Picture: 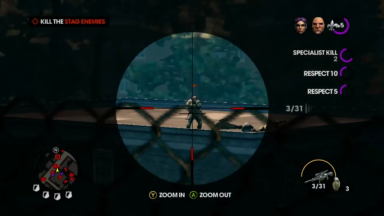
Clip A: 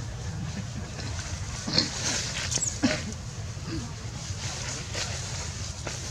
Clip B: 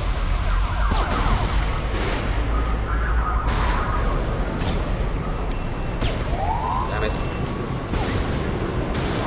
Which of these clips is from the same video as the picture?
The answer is B